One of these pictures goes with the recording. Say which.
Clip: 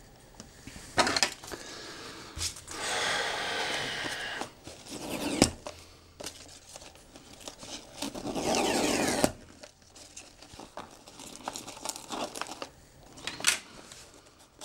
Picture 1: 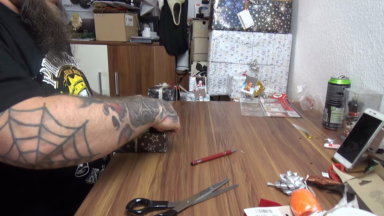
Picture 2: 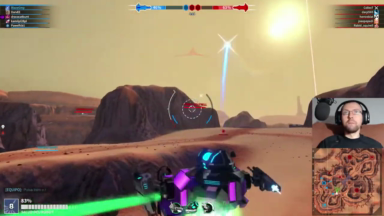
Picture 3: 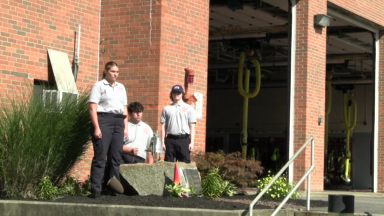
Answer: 1